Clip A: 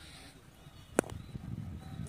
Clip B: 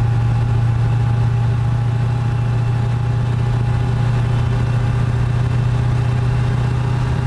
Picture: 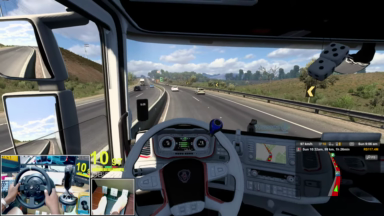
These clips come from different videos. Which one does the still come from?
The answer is B